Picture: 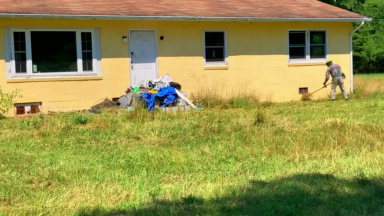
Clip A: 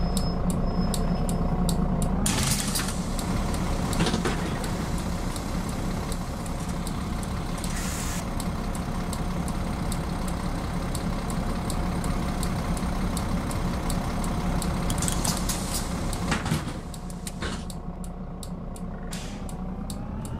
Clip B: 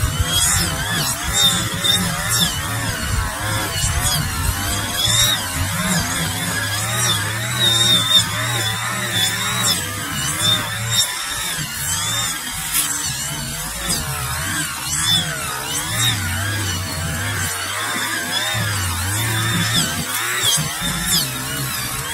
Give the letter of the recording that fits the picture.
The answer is B